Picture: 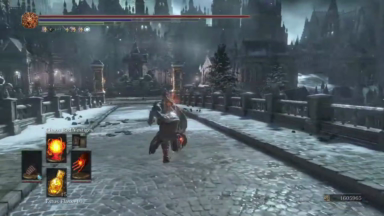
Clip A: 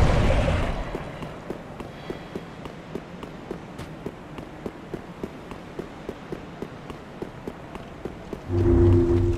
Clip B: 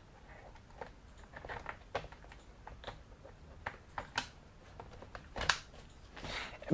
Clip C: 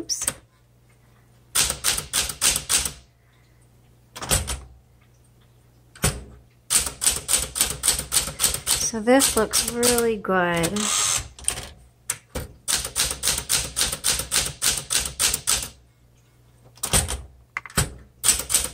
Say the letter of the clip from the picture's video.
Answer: A